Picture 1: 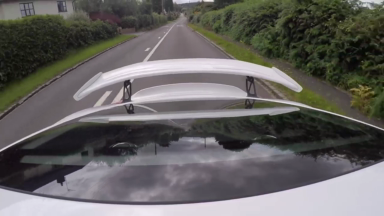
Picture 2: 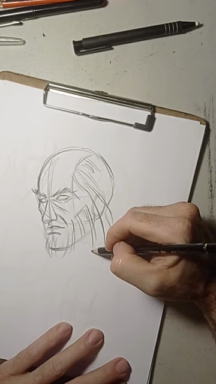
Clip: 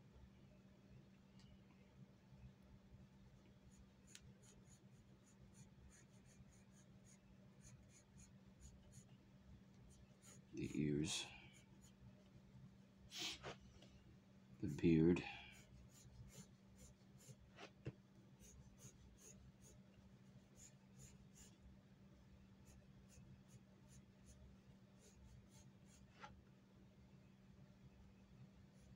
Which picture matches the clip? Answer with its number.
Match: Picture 2